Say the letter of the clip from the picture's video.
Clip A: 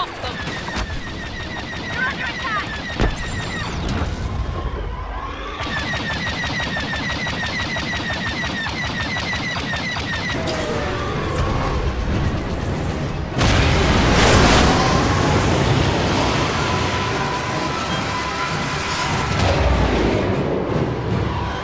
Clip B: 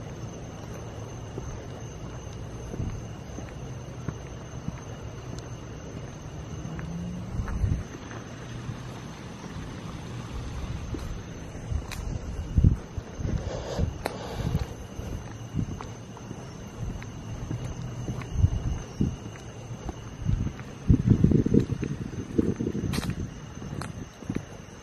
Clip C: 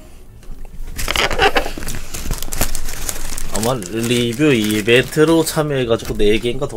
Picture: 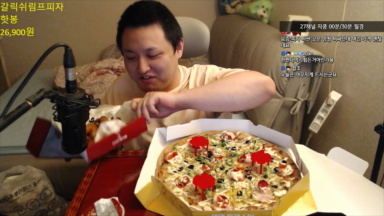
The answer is C